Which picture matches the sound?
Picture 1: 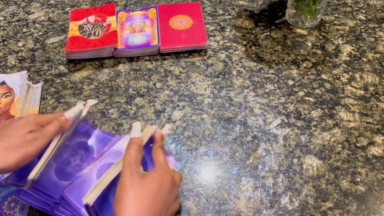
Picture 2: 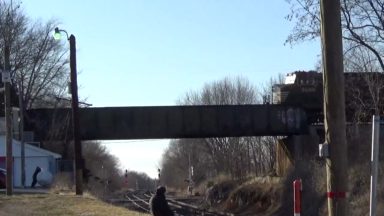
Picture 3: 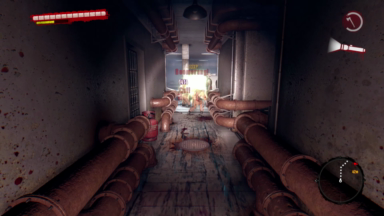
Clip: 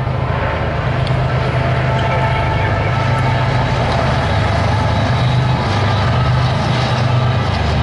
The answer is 2